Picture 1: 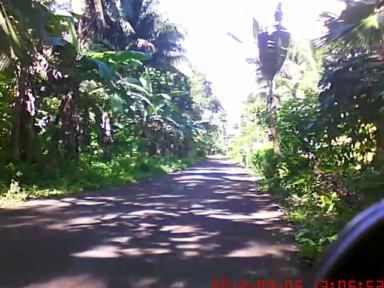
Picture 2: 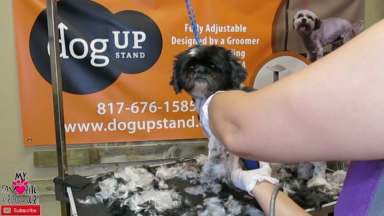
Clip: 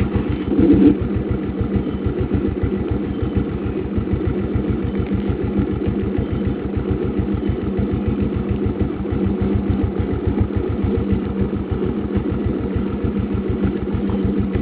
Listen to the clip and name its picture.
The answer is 1